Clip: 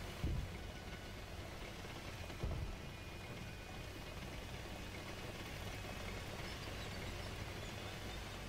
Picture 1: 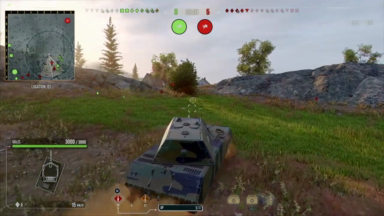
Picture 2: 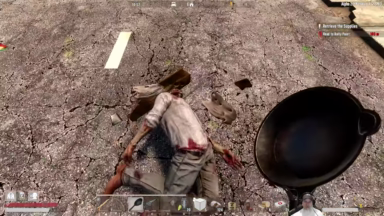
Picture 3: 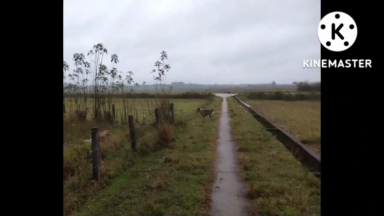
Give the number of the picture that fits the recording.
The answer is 1